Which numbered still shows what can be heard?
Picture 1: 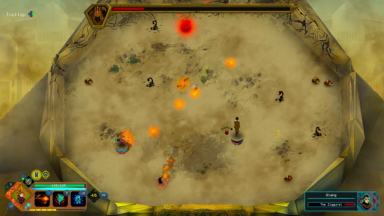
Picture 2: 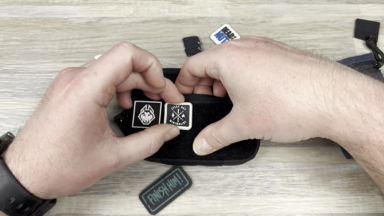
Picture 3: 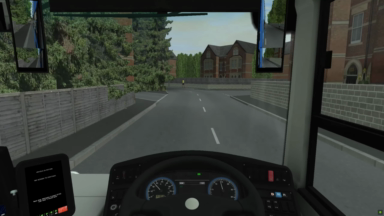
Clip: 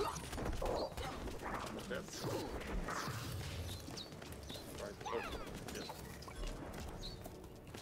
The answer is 1